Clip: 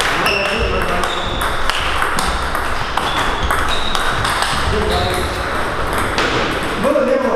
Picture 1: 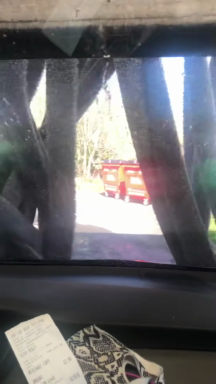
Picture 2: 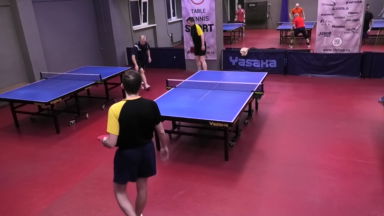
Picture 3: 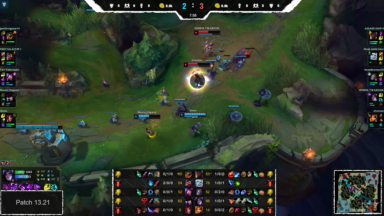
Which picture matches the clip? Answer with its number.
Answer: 2